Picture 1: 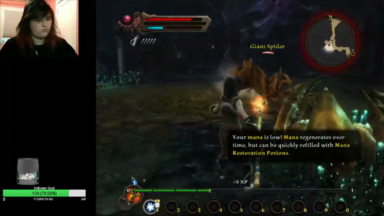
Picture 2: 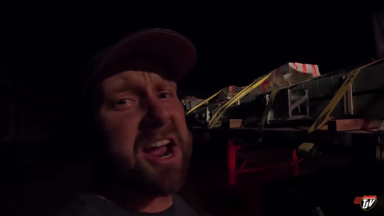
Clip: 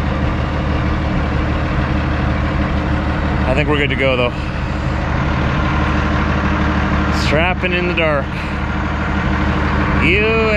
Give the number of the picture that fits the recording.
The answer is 2